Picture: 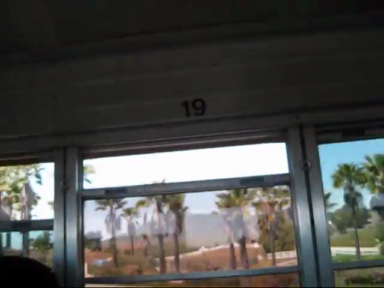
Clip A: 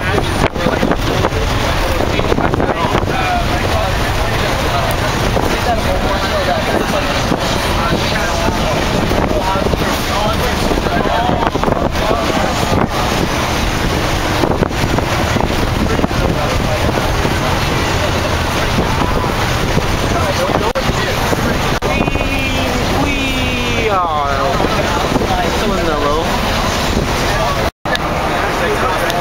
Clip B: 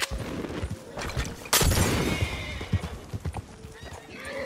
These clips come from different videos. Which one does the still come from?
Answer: A